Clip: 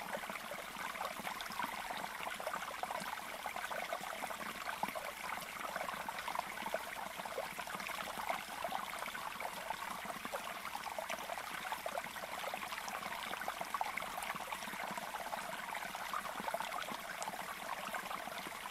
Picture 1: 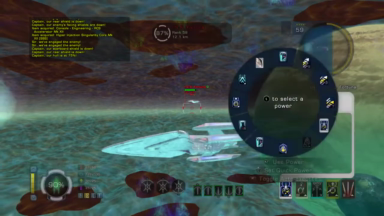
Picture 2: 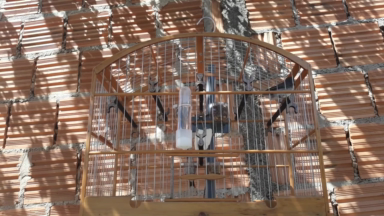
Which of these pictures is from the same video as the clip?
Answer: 2